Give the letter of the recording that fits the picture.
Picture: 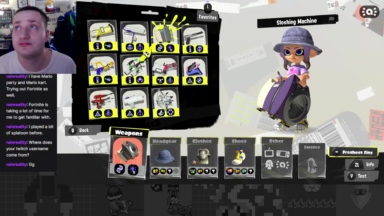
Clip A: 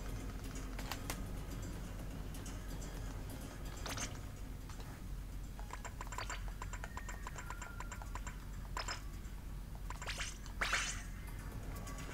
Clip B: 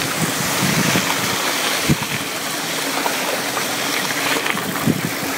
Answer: A